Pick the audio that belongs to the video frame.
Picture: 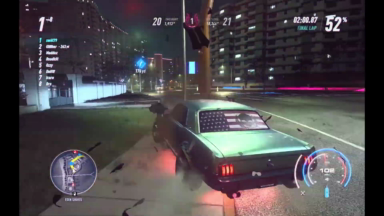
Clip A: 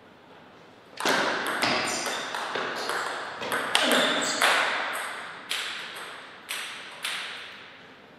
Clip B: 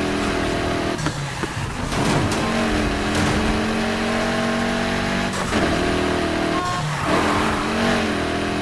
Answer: B